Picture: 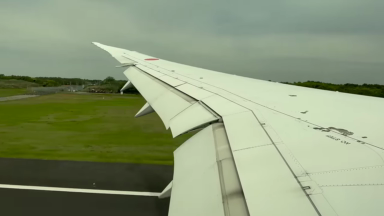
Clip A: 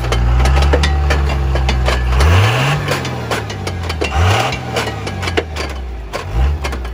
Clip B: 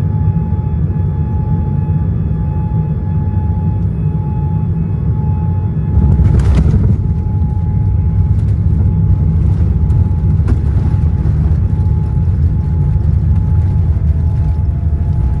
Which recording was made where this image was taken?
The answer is B